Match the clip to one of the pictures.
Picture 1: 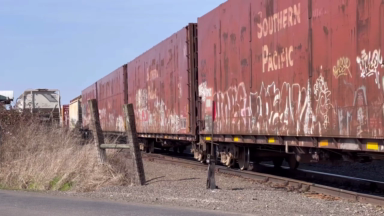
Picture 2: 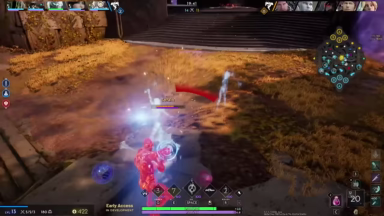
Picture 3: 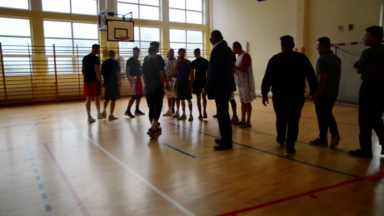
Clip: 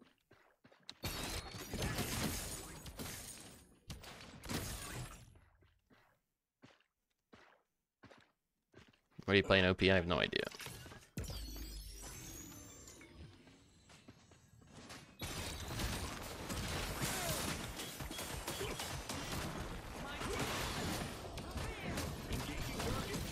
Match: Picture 2